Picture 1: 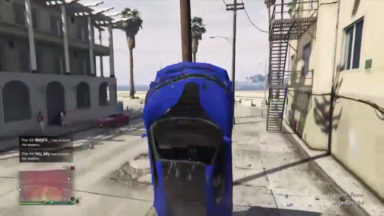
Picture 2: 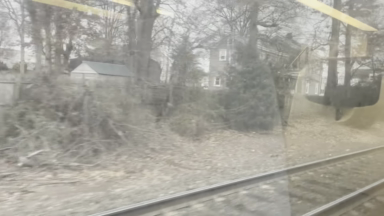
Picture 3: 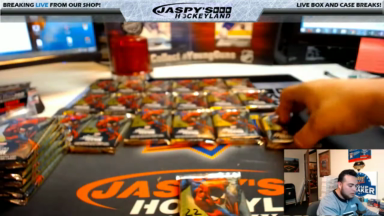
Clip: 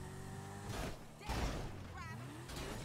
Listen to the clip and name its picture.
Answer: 1